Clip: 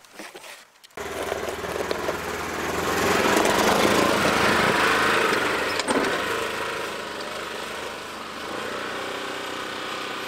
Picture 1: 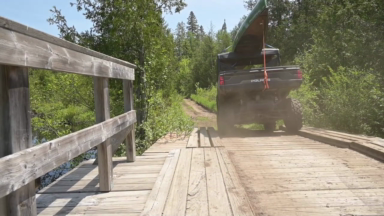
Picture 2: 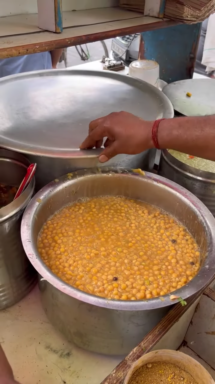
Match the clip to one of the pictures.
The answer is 1